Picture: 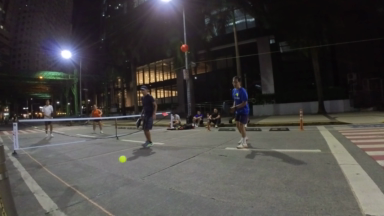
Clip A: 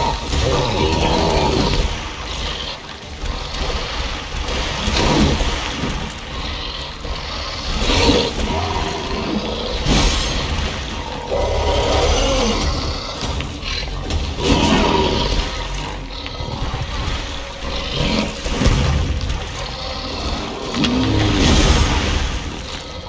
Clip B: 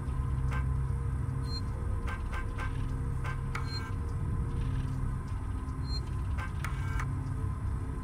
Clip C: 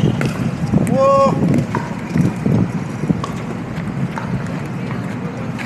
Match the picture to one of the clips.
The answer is C